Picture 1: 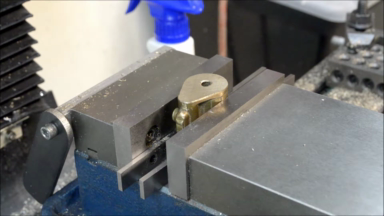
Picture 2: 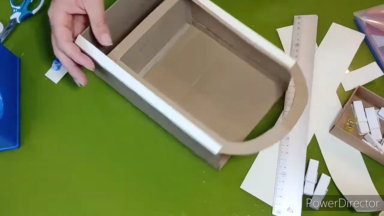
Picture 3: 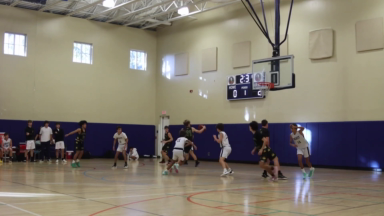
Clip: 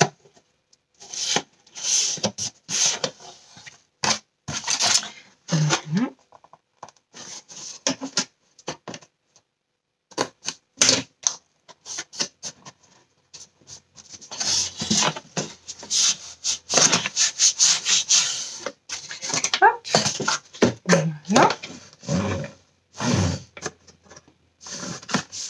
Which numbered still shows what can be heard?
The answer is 2